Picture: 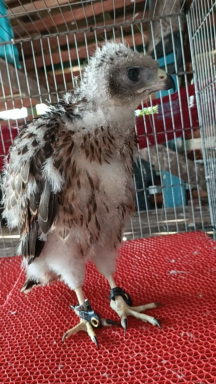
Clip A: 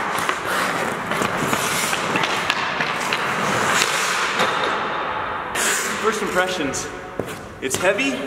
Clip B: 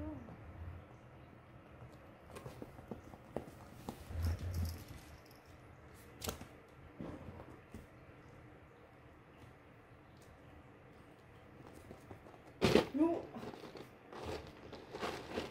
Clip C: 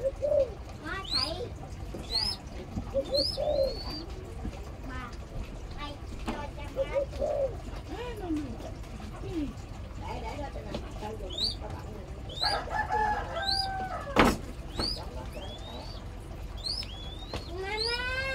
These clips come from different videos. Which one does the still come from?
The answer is C